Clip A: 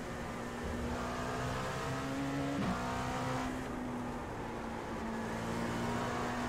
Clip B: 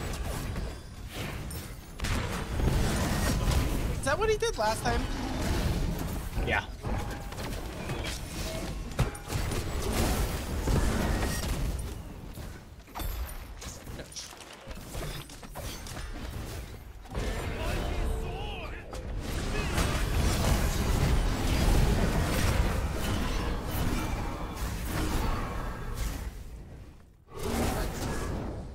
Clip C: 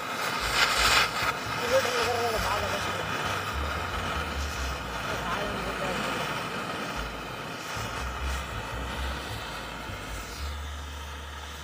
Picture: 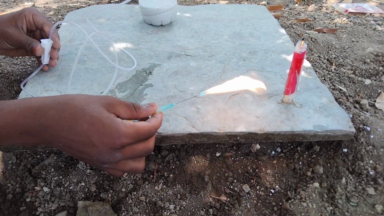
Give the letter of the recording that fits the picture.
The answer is C